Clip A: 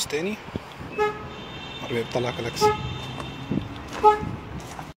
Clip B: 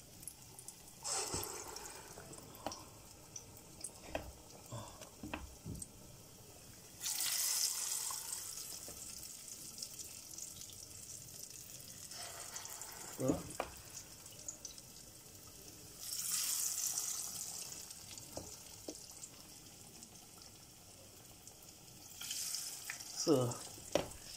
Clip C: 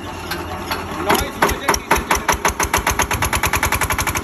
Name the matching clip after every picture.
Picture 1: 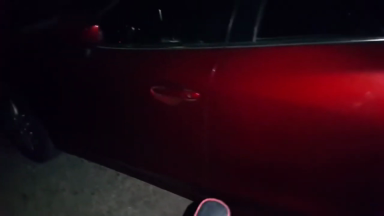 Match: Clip A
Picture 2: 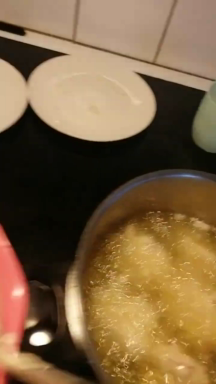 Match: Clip B